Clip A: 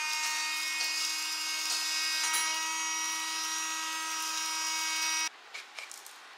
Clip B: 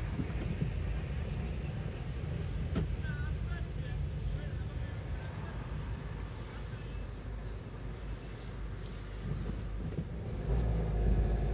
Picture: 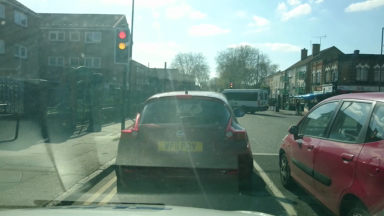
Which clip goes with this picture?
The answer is B